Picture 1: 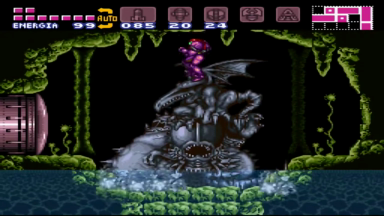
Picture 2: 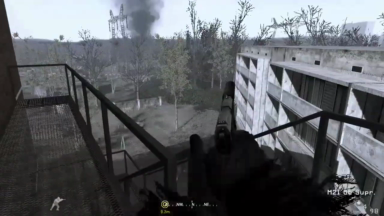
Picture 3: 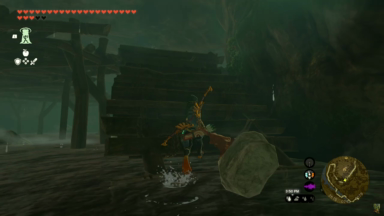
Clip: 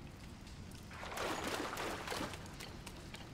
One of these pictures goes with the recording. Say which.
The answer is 3